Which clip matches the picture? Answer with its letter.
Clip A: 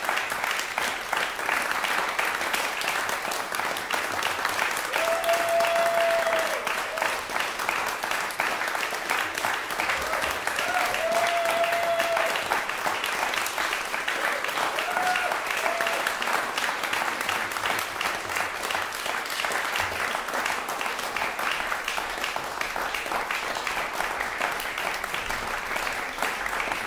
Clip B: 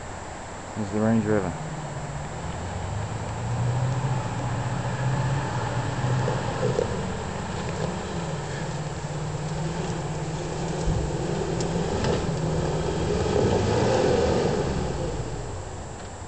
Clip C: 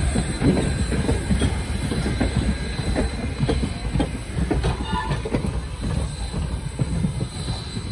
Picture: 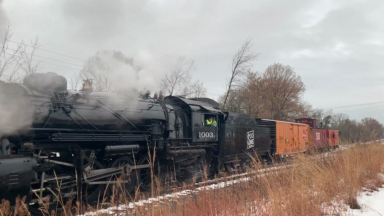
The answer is C